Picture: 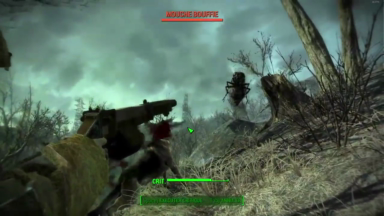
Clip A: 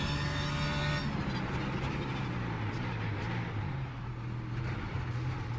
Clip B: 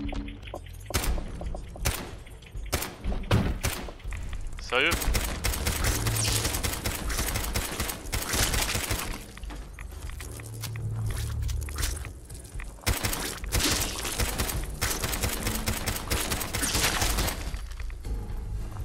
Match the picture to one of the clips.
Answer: B